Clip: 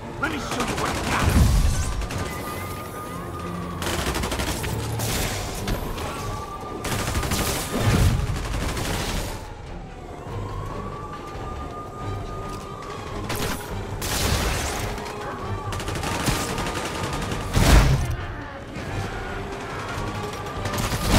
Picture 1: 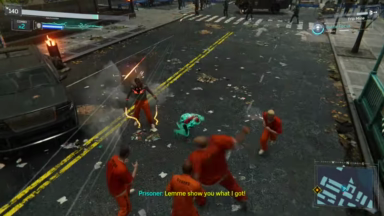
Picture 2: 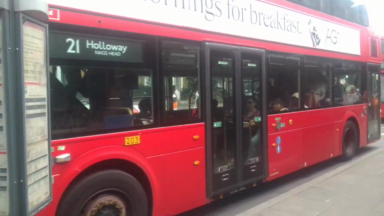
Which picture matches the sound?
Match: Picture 1